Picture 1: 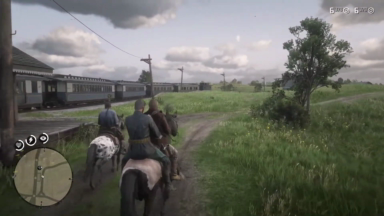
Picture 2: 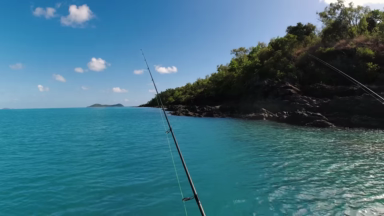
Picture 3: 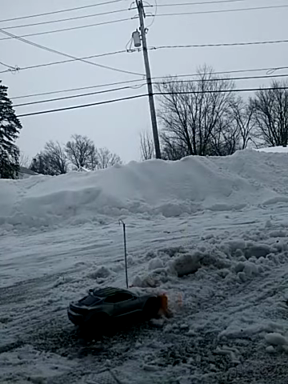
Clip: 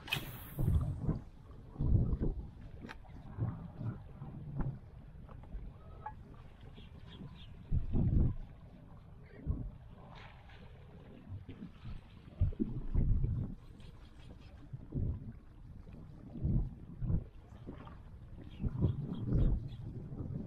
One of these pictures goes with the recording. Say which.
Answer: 2